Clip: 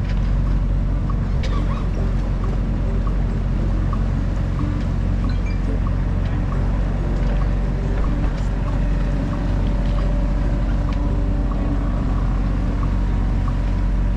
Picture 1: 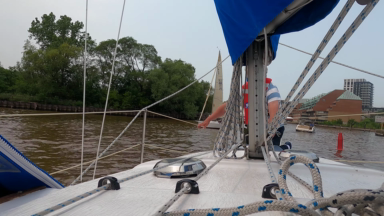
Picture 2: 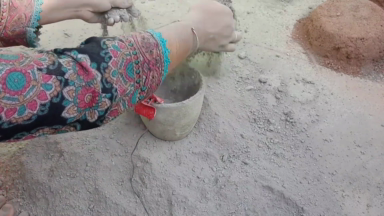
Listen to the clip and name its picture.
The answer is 1